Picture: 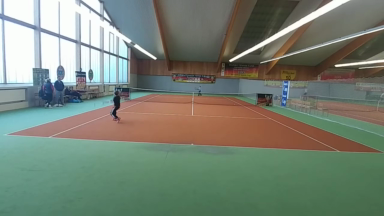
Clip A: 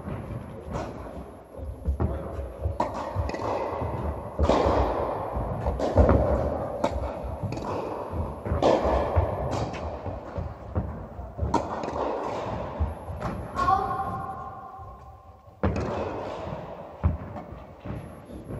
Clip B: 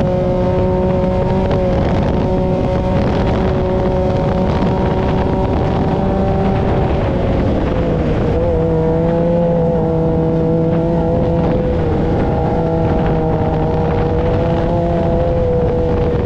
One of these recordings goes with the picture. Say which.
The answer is A